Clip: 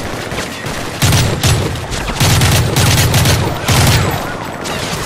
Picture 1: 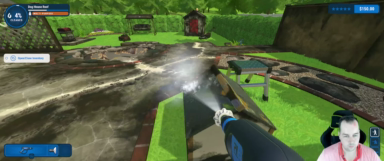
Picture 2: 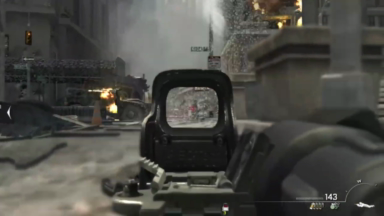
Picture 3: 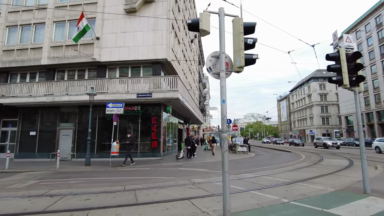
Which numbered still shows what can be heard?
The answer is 2